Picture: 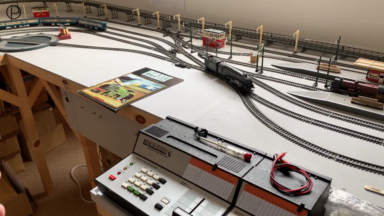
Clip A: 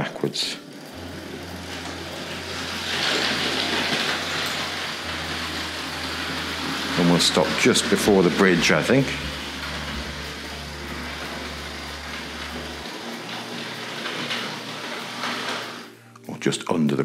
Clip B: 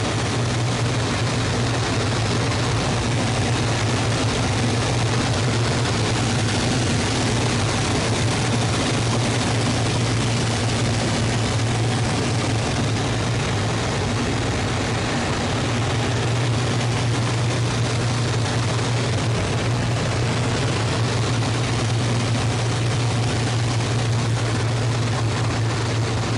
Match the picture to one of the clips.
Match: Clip A